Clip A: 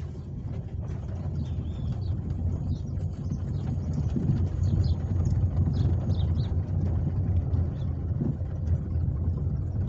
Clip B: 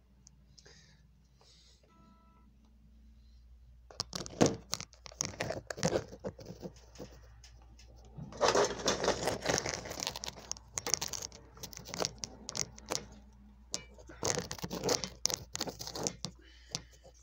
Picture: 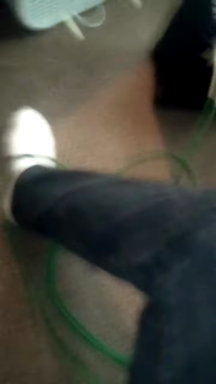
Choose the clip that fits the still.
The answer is B